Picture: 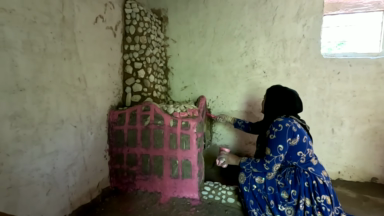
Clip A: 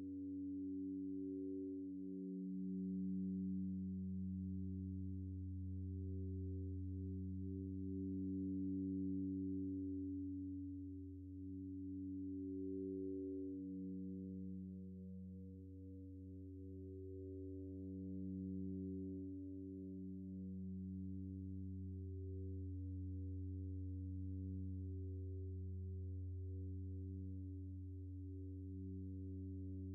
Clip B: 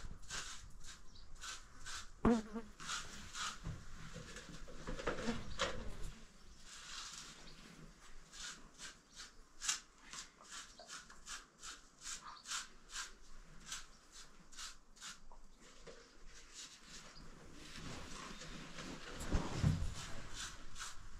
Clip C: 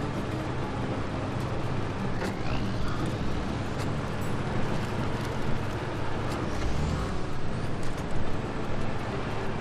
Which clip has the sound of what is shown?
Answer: B